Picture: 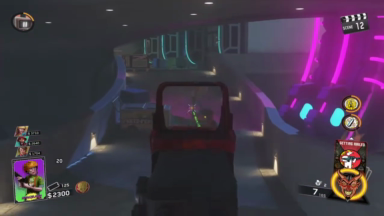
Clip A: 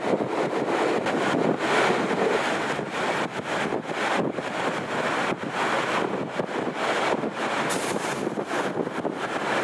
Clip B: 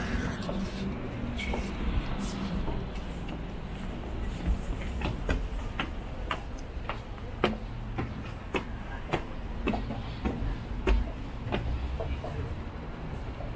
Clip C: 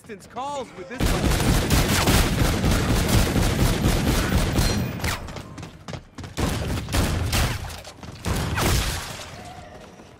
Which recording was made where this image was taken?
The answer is C